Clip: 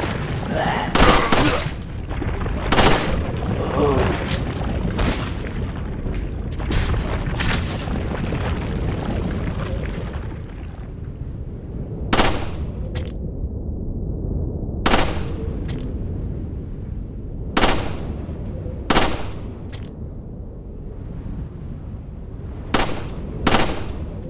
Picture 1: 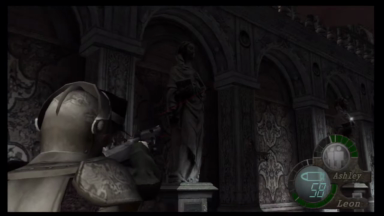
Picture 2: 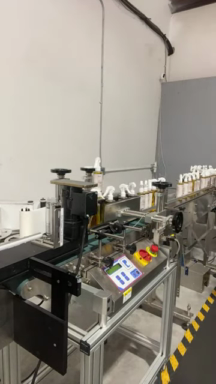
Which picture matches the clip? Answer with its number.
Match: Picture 1